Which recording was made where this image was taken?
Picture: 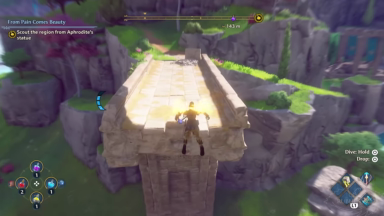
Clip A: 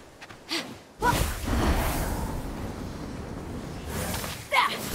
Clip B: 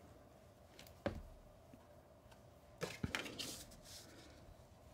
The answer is A